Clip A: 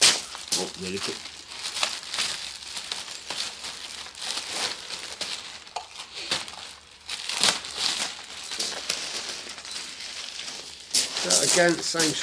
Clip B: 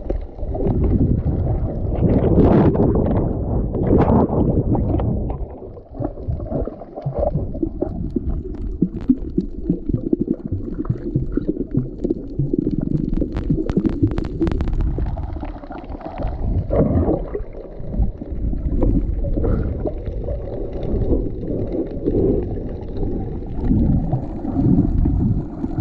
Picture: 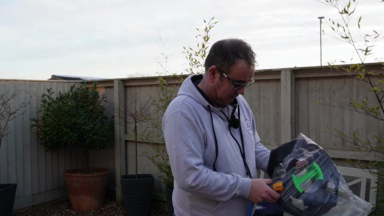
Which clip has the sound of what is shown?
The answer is A